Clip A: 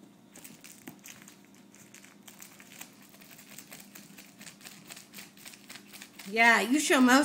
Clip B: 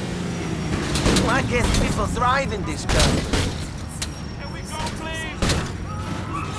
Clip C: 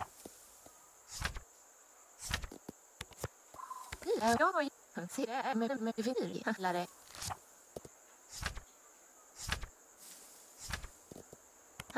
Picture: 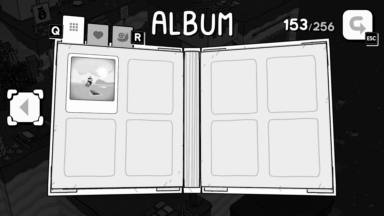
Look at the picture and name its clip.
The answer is C